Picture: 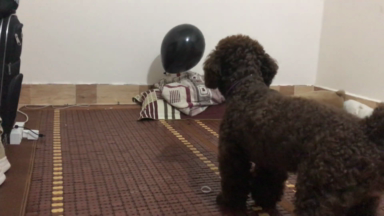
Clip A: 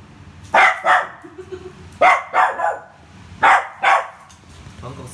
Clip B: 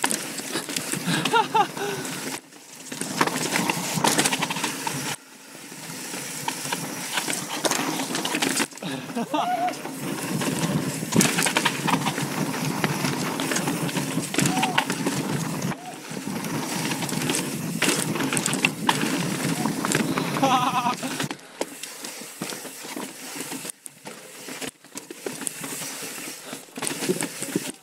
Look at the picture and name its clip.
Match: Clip A